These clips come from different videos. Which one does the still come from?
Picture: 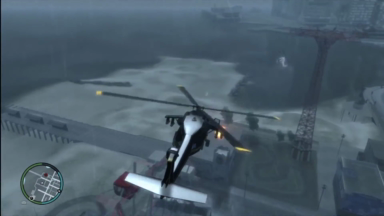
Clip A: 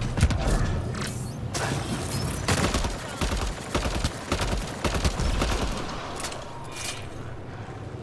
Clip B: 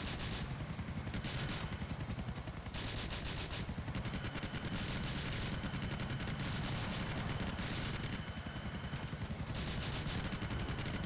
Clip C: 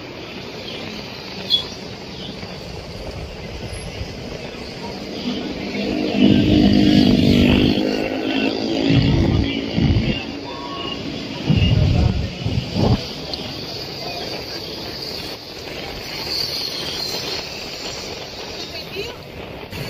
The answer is B